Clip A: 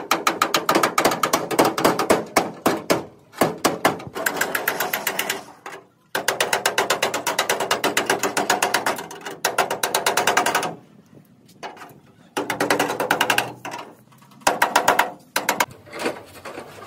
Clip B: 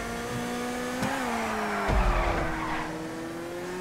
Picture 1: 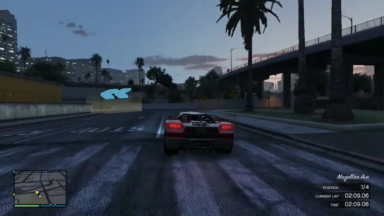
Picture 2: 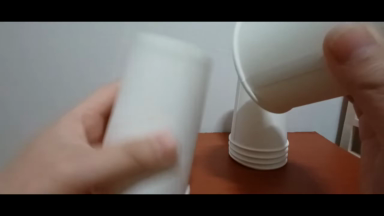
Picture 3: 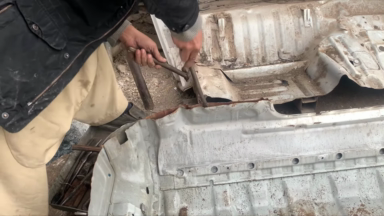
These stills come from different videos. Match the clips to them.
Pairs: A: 3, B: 1